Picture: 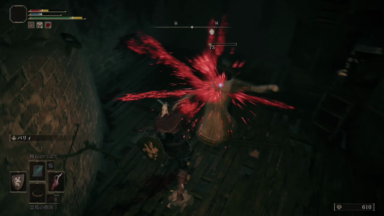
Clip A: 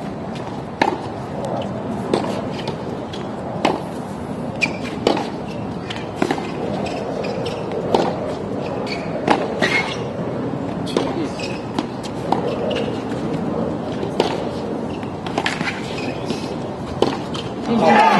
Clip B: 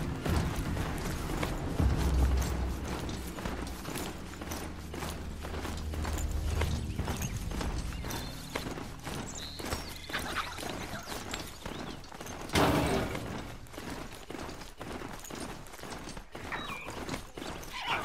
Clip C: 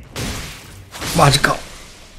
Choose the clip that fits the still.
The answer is C